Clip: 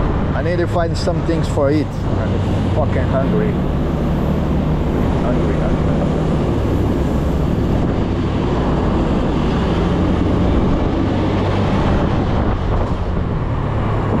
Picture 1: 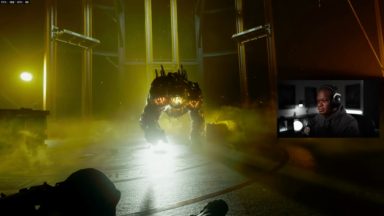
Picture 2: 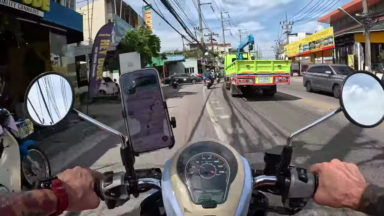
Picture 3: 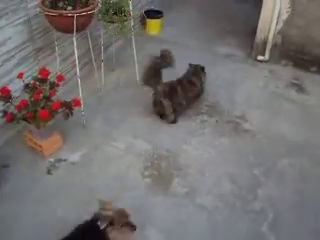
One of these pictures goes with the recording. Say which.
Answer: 2